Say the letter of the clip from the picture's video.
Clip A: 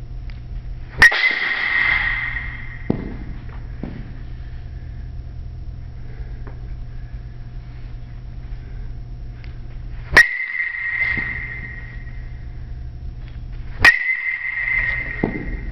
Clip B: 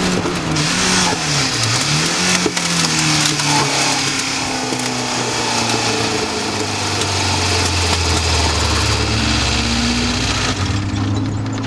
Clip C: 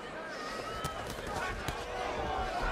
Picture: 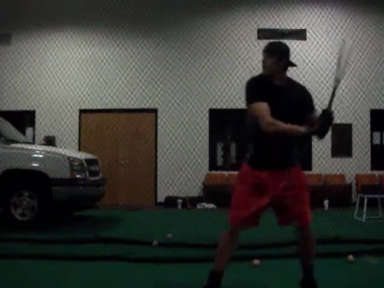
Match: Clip A